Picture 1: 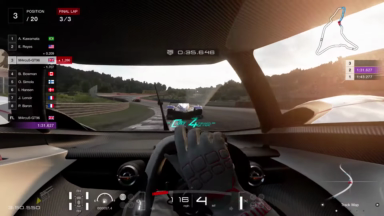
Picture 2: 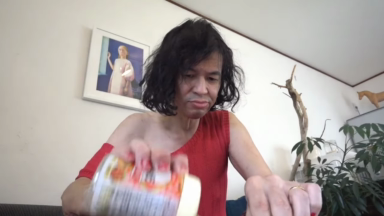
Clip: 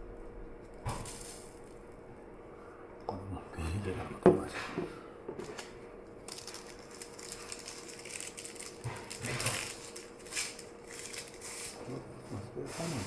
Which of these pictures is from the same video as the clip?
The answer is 2